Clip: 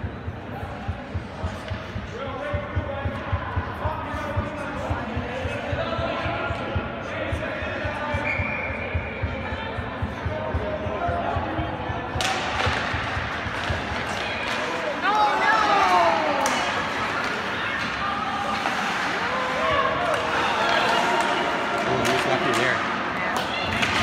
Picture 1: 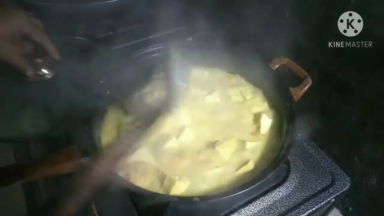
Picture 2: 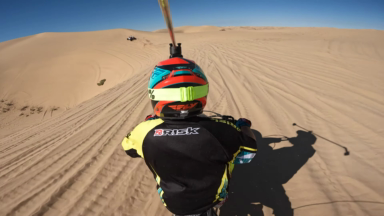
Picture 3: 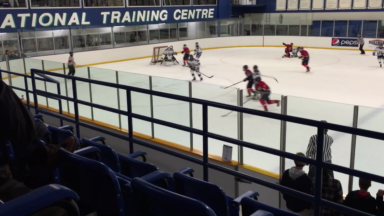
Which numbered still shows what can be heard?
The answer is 3